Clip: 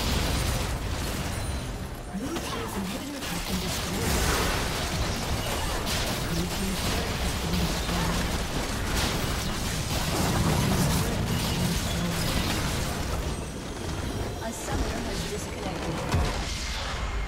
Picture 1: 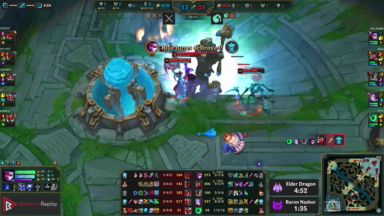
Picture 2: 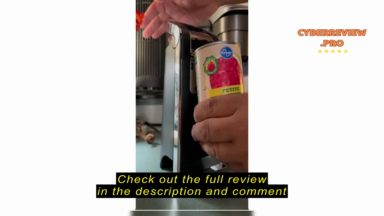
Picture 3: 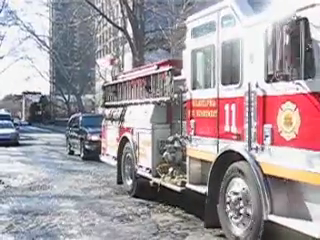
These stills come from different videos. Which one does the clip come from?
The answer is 1